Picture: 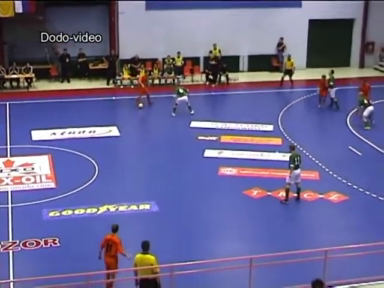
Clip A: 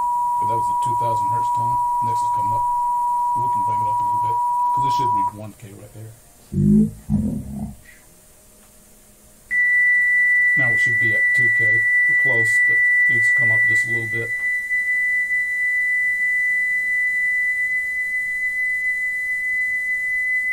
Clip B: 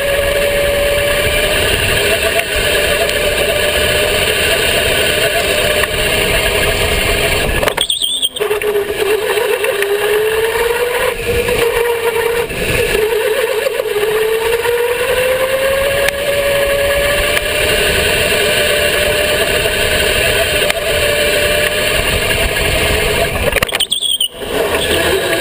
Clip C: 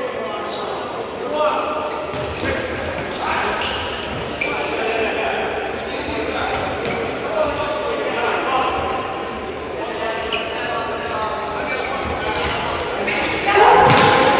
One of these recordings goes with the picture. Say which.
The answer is C